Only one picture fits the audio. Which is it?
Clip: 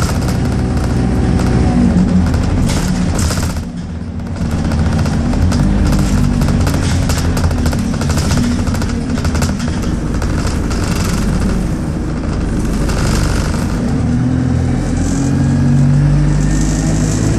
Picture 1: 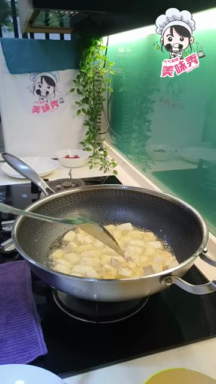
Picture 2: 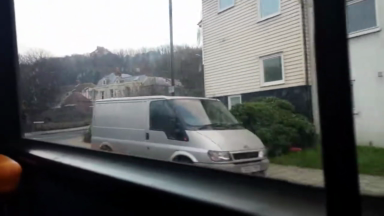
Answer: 2